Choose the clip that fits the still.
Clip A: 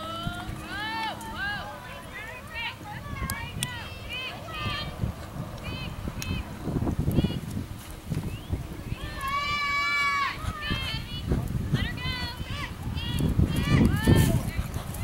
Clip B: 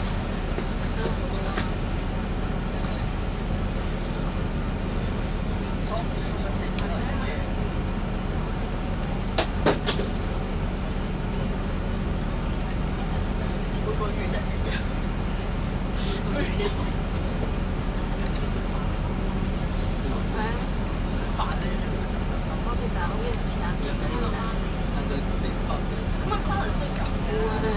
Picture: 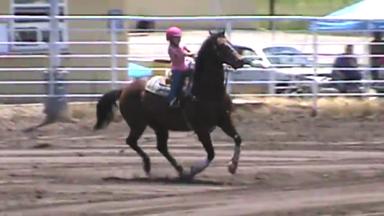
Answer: A